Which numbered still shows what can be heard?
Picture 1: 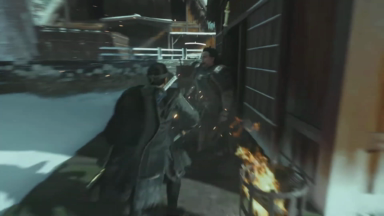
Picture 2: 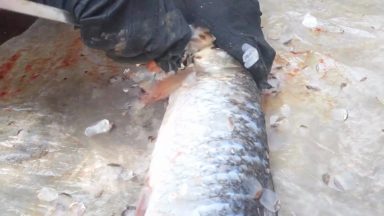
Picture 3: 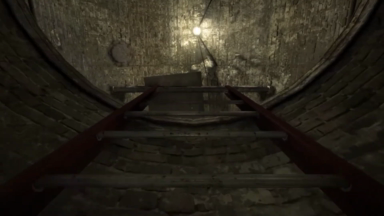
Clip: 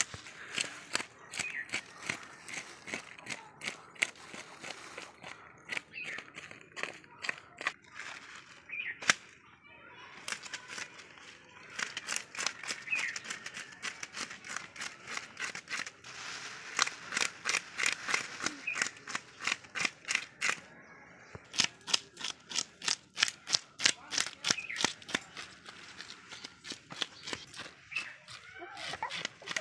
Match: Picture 2